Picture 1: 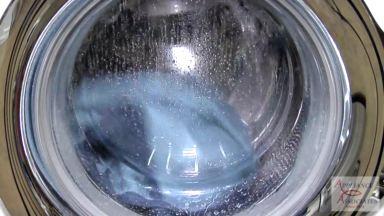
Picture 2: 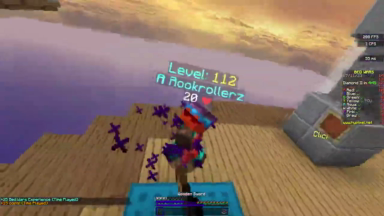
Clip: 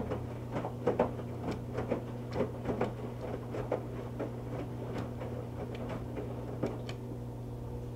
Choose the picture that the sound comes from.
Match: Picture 1